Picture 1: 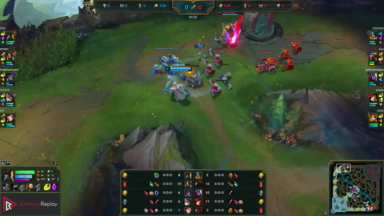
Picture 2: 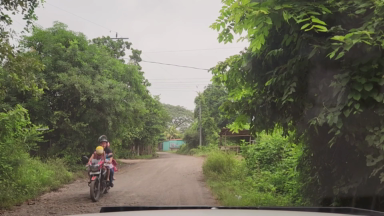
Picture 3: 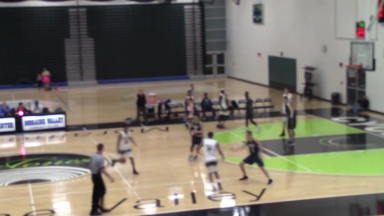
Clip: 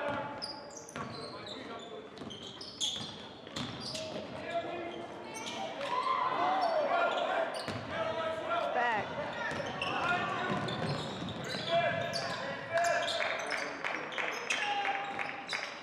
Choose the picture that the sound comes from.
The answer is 3